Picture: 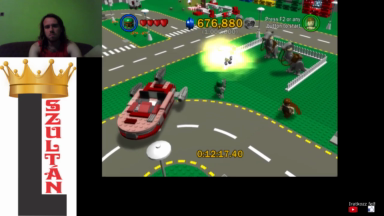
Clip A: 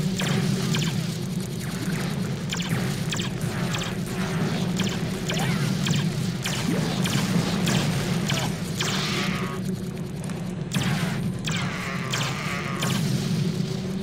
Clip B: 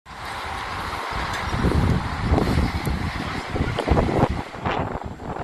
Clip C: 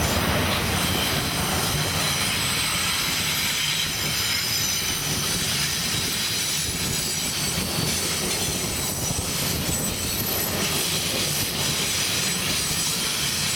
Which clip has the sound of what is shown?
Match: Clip A